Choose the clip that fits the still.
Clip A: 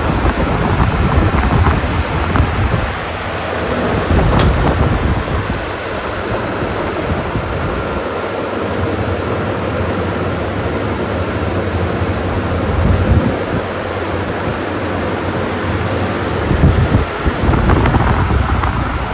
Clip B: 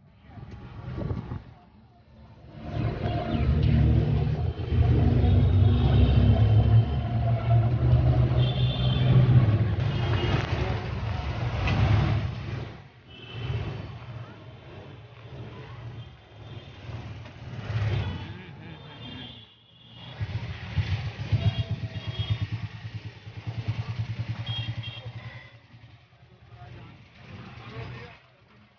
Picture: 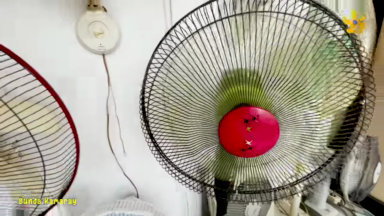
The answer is A